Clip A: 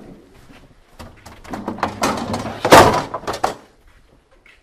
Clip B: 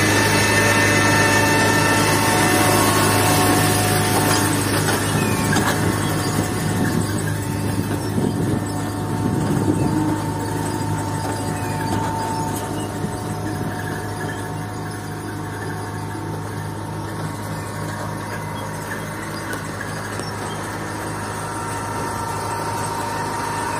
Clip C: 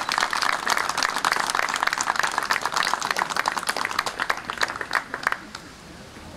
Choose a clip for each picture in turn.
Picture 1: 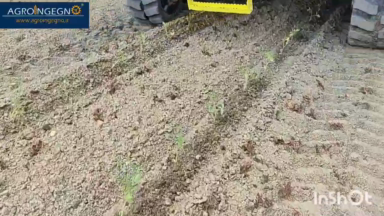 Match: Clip B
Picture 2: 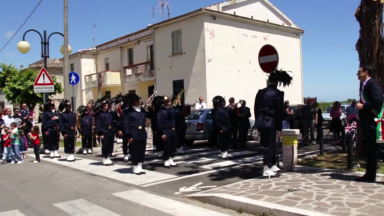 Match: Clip C